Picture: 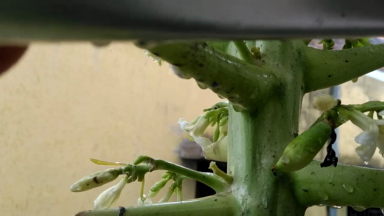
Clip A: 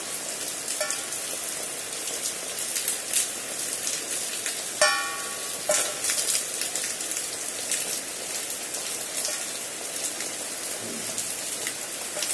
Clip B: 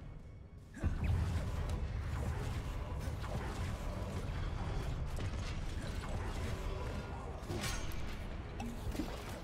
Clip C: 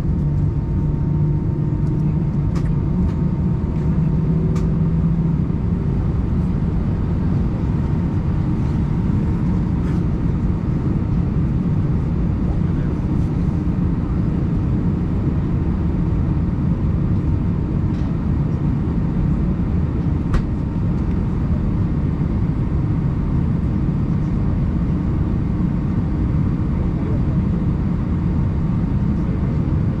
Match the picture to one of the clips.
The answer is A